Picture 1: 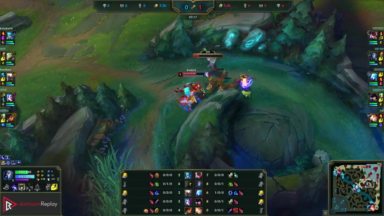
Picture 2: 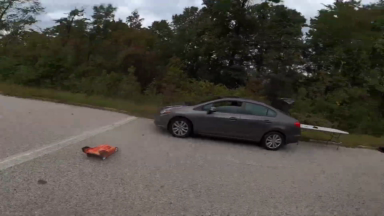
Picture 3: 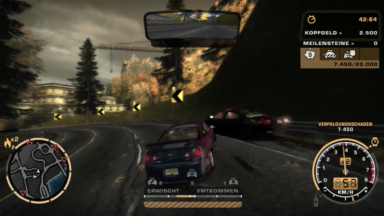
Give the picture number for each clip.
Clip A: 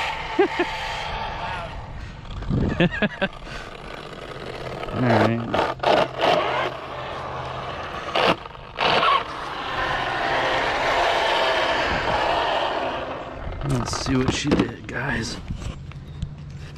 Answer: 2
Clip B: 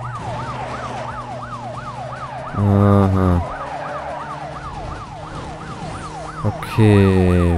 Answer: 3